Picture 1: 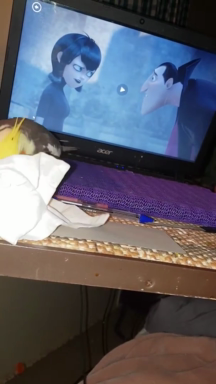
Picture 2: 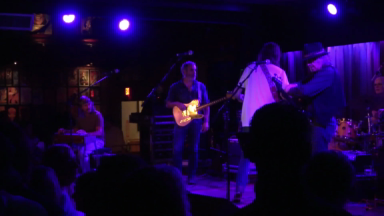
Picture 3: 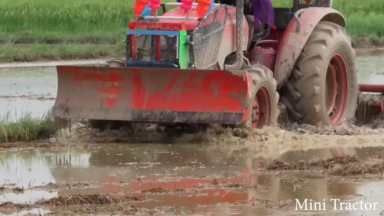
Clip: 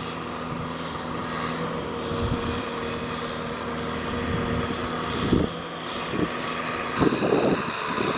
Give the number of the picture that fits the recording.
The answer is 3